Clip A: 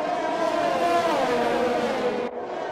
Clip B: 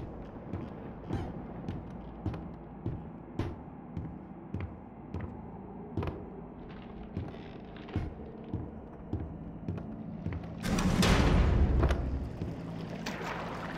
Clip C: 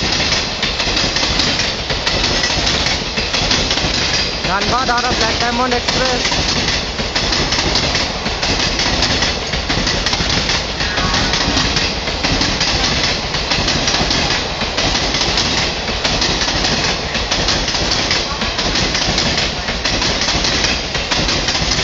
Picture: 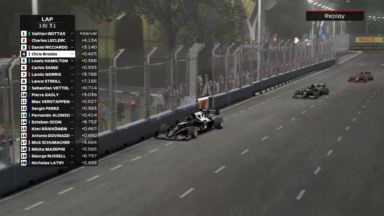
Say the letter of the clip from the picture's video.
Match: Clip A